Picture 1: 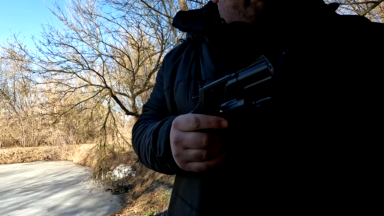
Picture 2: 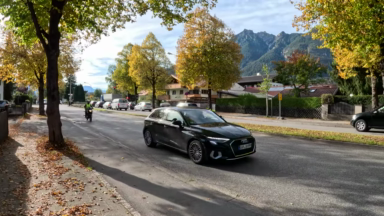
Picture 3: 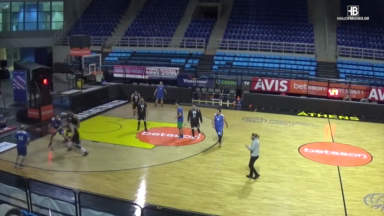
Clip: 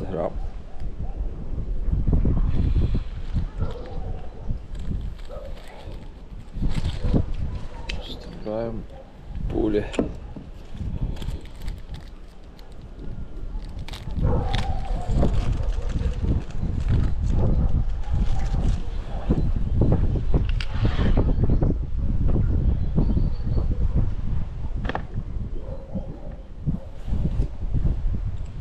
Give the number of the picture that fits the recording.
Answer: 1